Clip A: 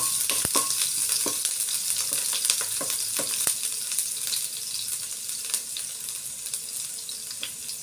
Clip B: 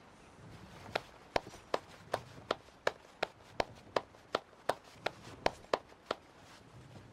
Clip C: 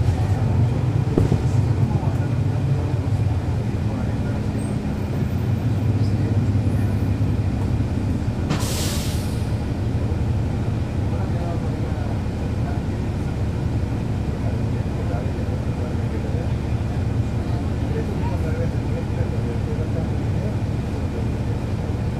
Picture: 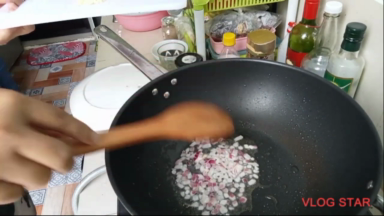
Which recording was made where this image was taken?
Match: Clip A